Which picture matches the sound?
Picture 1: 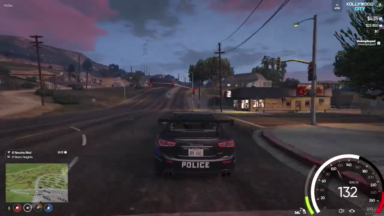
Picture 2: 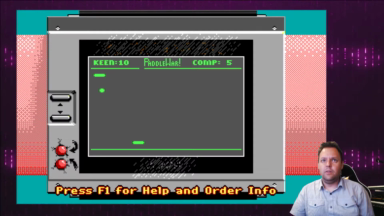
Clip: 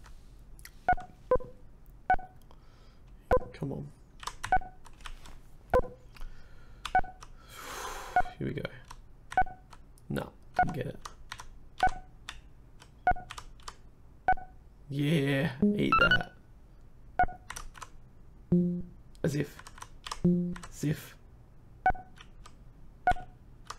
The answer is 2